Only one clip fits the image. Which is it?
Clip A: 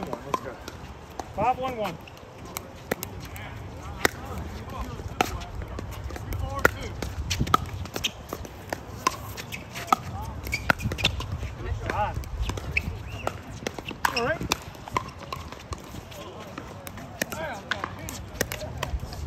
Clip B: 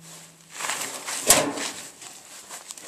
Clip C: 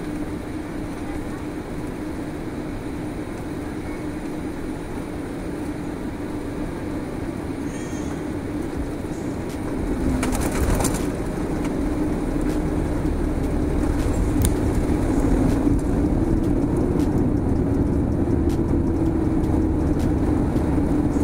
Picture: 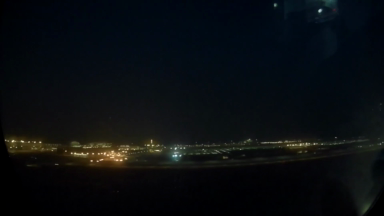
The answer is C